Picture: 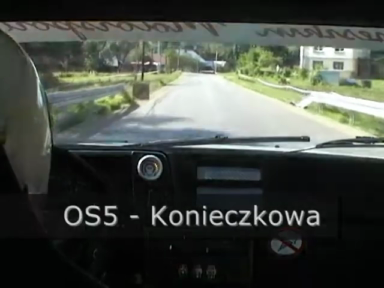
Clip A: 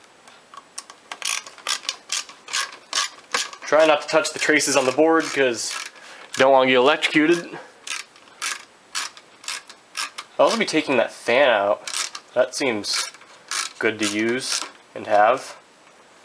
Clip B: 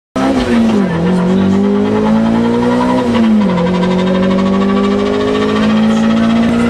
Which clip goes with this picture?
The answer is B